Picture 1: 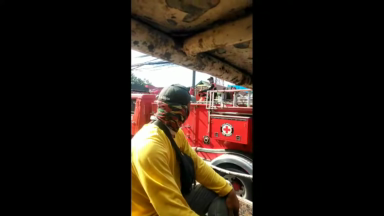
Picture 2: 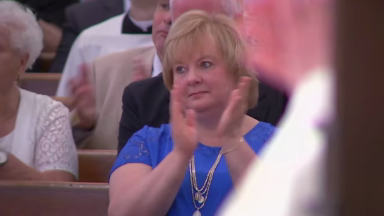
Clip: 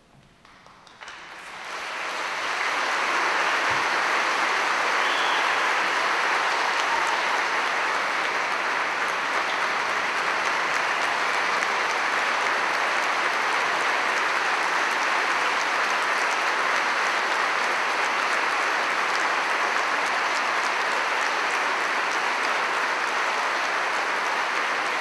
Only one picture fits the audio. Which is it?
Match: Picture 2